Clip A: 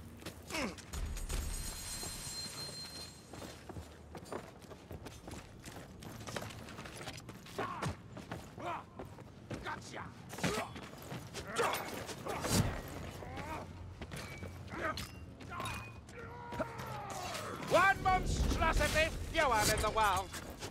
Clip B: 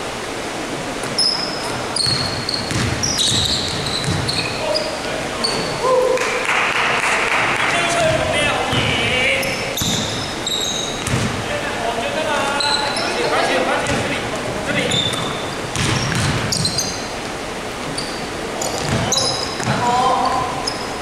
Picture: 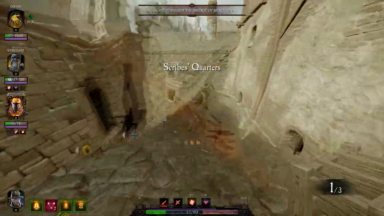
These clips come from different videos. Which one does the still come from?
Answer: A